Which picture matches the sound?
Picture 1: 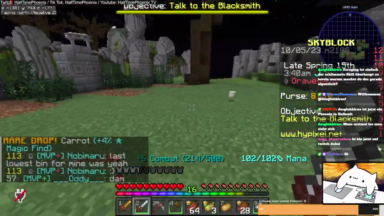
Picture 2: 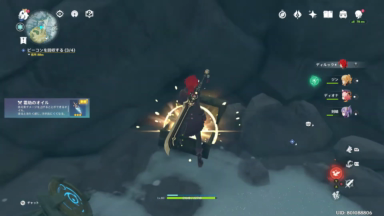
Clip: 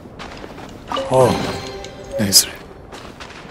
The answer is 2